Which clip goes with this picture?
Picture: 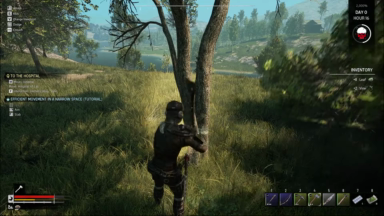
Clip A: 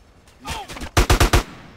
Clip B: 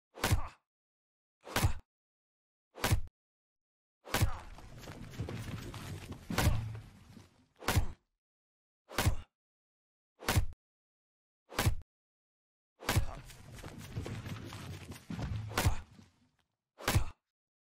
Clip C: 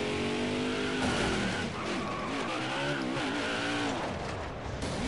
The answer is B